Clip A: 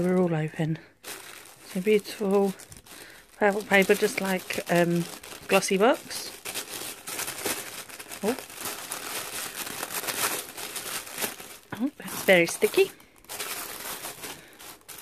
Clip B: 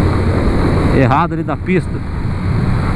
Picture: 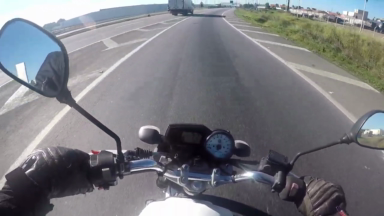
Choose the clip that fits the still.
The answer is B